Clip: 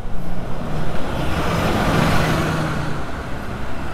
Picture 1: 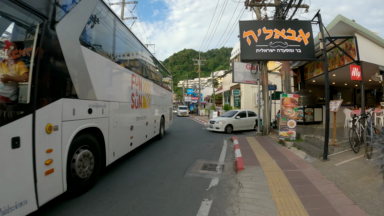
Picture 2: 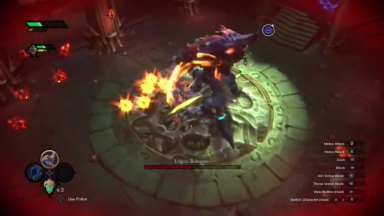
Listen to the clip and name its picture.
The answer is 1